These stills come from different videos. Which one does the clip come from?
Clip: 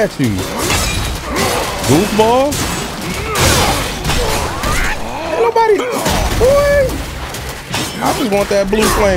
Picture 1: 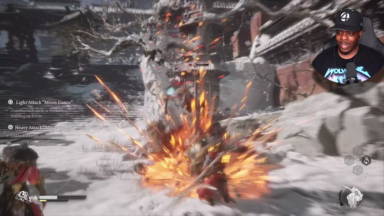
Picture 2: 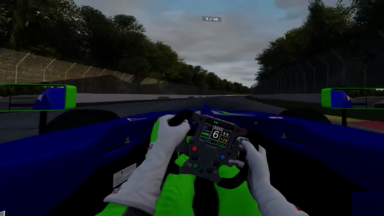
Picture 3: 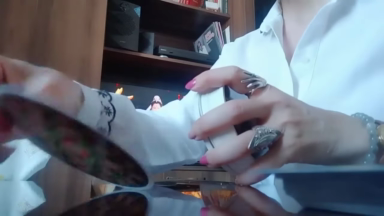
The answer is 1